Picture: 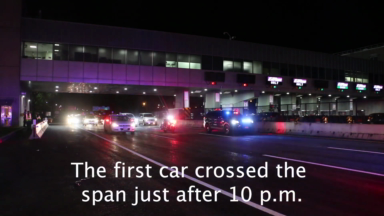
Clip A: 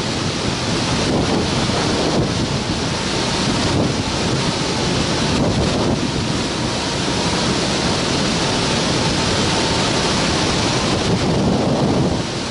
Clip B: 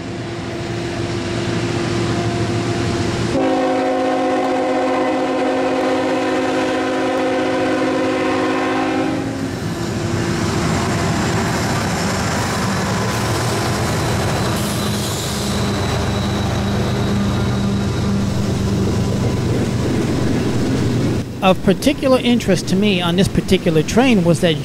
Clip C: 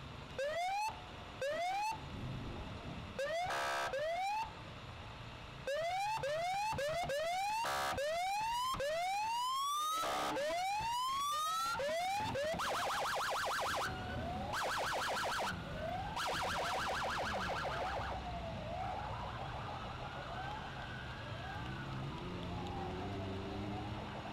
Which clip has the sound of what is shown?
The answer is C